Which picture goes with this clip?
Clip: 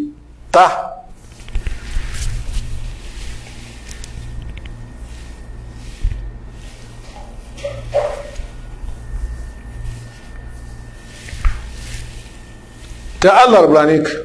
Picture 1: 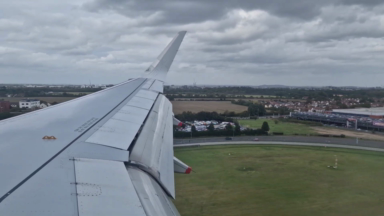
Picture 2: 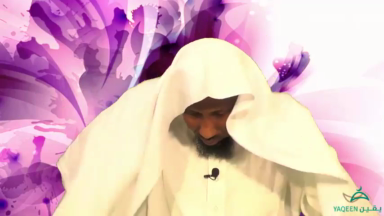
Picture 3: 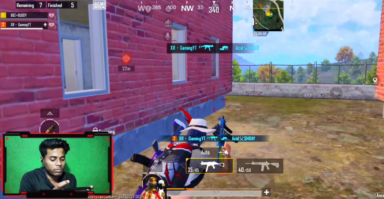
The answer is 2